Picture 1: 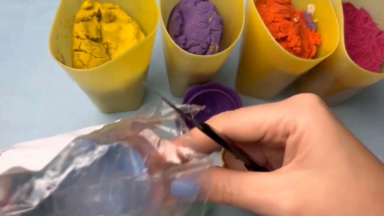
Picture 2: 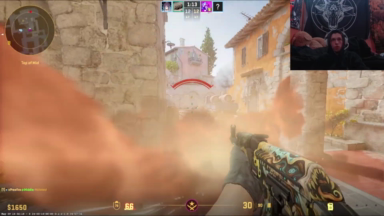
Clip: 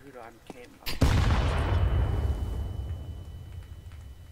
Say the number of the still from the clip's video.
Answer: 2